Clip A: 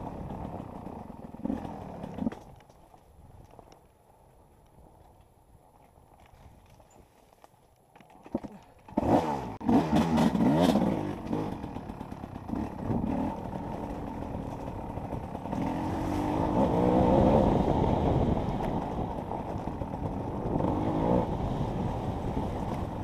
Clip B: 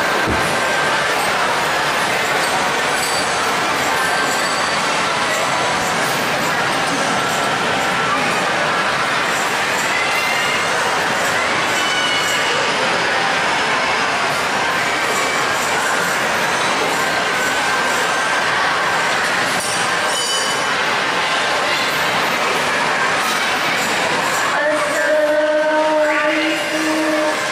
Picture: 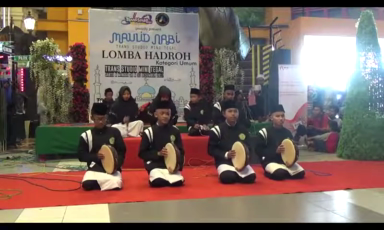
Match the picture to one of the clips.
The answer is B